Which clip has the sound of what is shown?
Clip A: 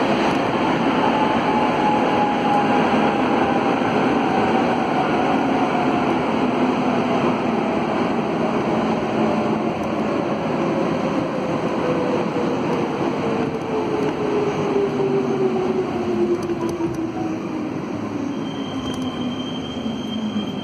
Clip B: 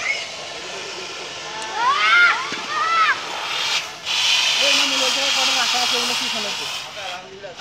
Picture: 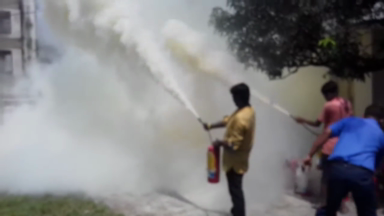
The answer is B